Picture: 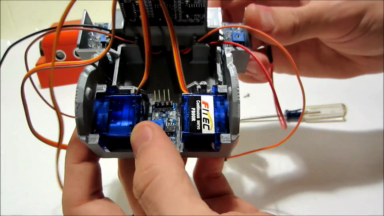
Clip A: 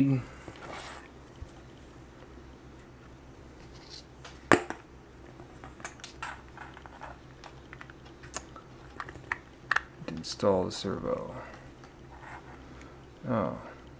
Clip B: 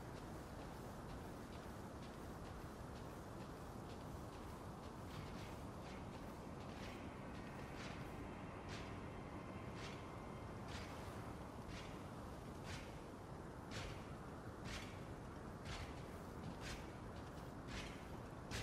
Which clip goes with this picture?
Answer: A